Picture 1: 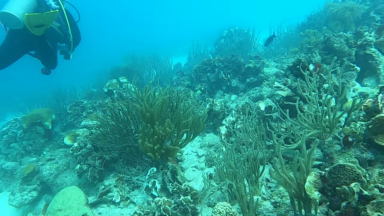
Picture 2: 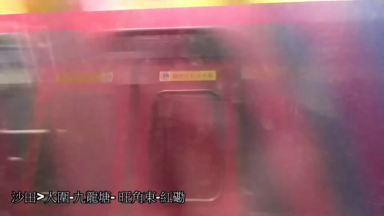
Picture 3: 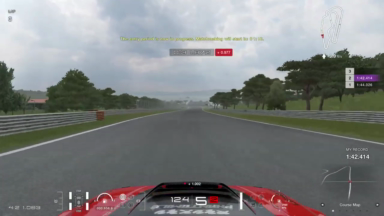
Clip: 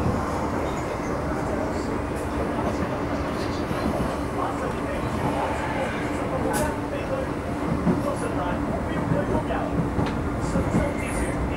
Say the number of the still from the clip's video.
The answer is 2